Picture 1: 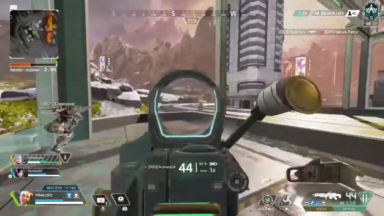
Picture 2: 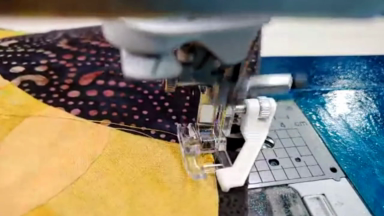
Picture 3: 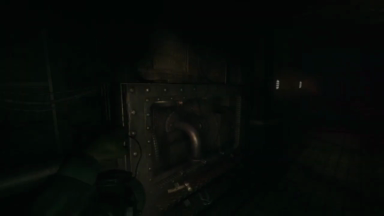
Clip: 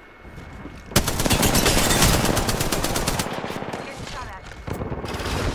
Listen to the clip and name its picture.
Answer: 1